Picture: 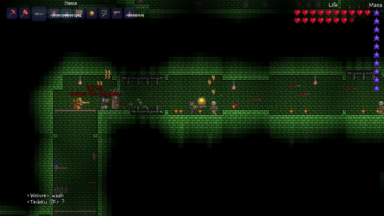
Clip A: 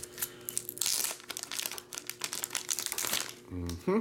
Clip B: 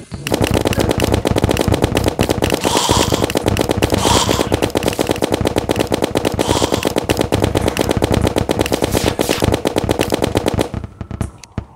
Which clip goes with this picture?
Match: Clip B